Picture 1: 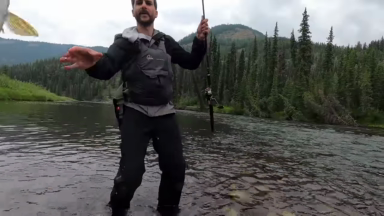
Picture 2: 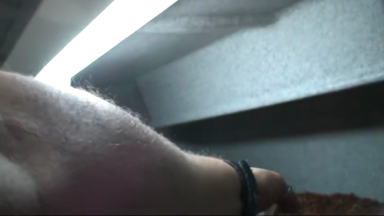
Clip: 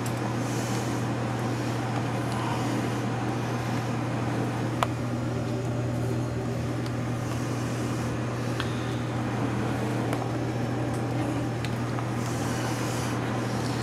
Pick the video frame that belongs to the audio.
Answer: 2